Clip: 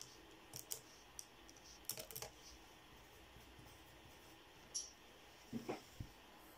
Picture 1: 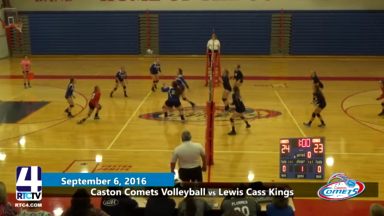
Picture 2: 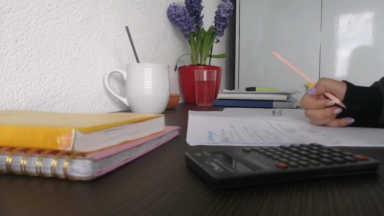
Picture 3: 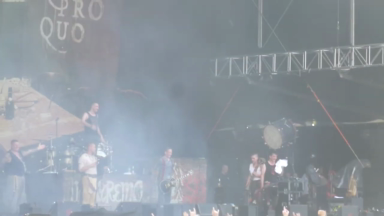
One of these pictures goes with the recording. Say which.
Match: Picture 2